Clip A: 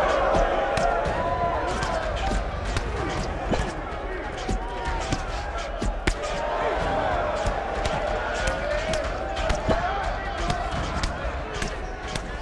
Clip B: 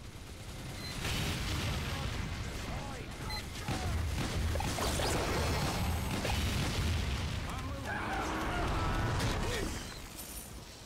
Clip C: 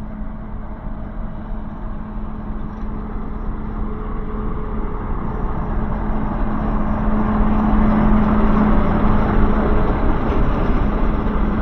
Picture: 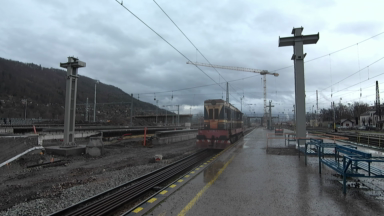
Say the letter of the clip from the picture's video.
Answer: C